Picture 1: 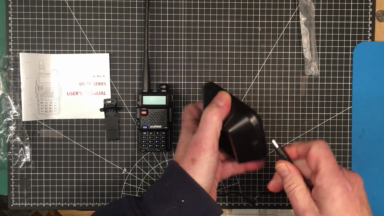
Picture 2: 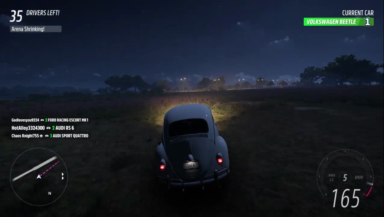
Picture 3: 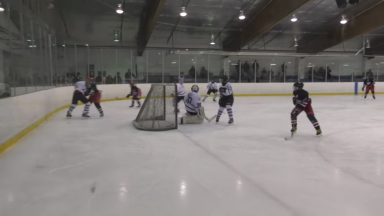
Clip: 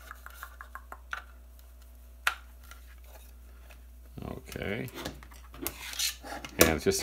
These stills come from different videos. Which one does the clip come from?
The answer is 1